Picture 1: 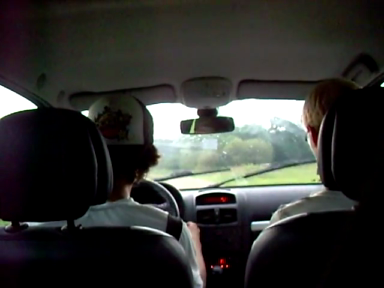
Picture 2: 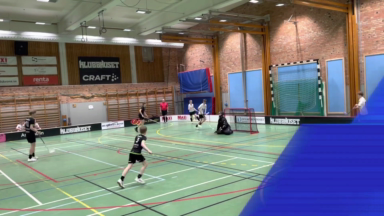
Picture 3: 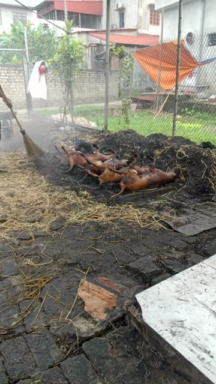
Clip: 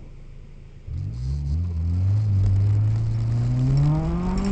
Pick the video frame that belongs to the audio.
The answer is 1